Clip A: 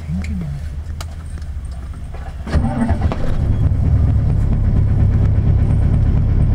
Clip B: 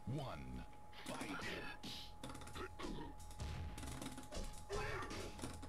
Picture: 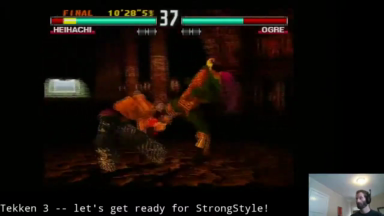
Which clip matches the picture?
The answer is B